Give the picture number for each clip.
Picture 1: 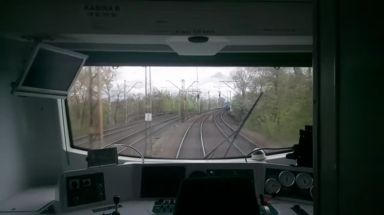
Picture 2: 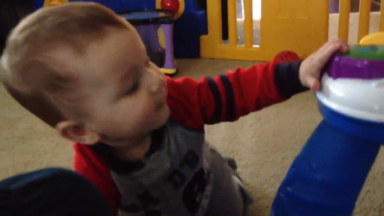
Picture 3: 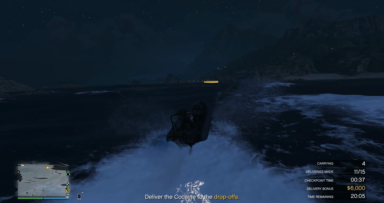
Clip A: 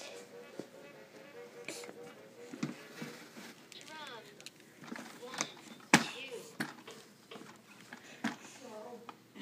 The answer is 2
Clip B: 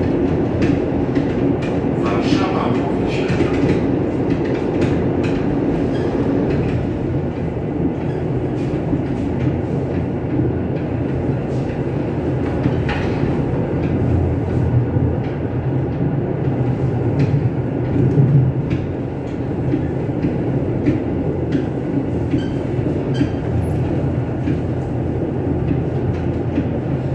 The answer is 1